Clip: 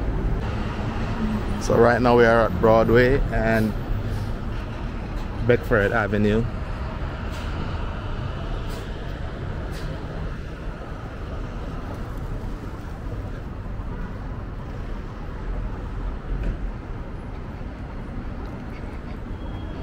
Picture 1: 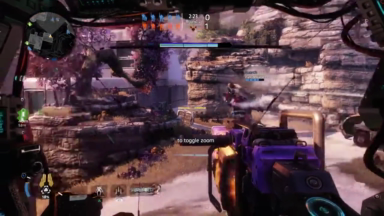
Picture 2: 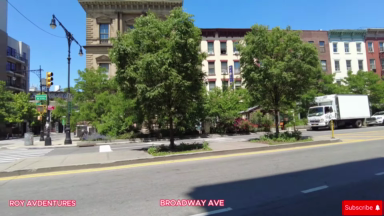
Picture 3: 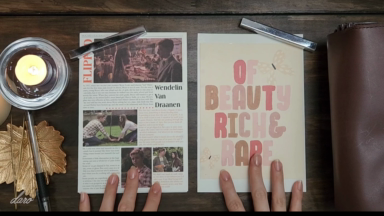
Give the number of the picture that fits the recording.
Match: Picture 2